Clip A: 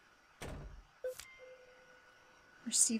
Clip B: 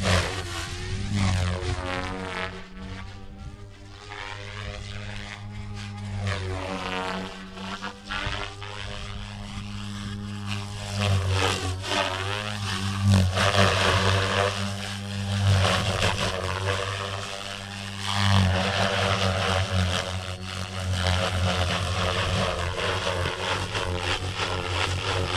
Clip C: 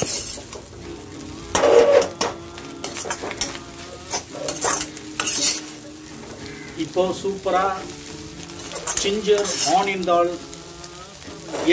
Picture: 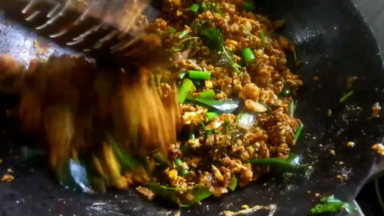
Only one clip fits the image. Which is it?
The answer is C